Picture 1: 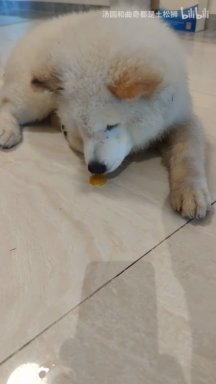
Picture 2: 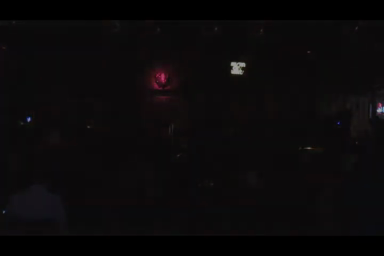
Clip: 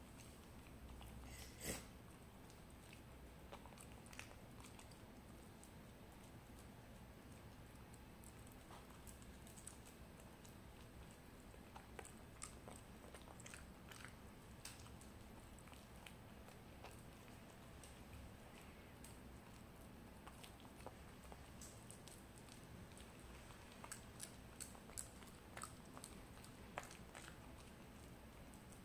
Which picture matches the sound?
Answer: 1